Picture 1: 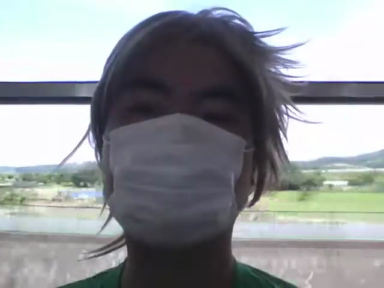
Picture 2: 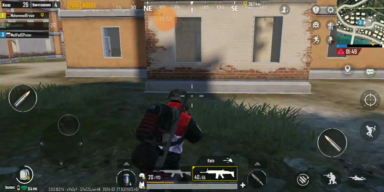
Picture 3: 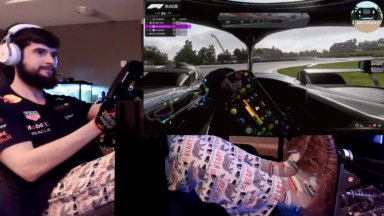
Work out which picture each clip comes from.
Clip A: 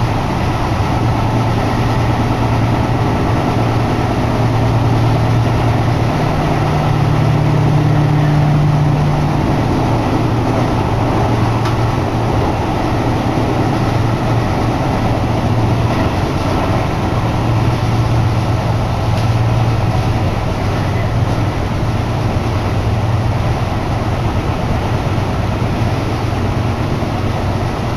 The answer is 1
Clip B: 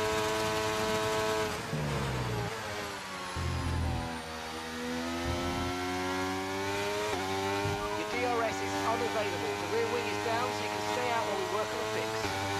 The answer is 3